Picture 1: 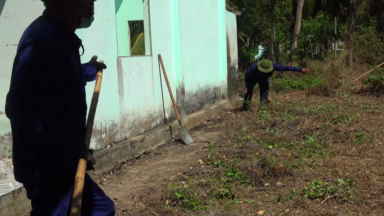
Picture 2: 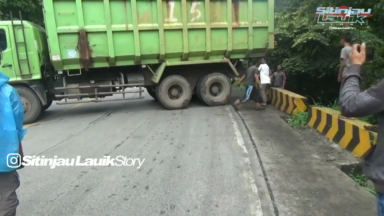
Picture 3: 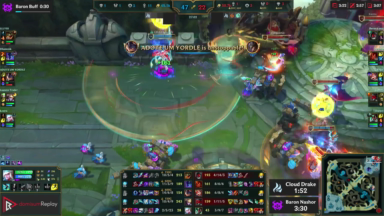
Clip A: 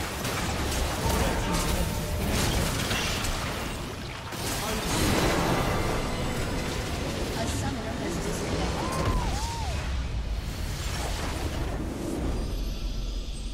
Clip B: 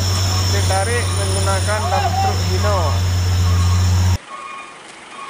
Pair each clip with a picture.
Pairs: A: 3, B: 2